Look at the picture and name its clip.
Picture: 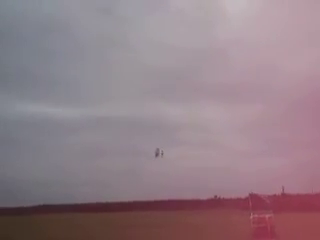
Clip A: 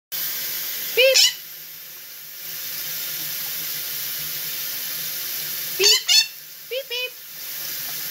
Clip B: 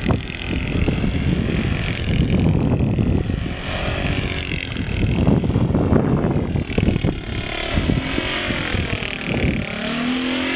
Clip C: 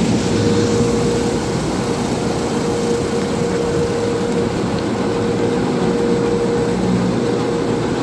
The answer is B